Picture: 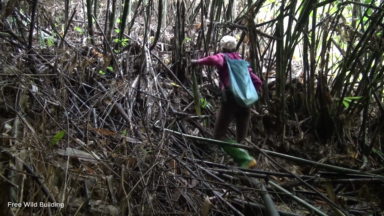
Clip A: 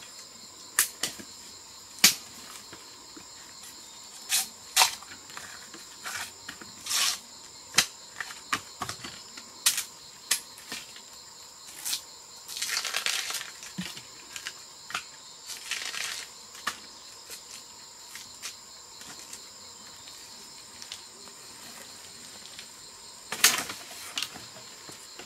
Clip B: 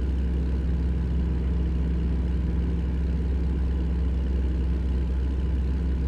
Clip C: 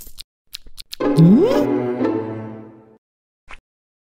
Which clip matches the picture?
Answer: A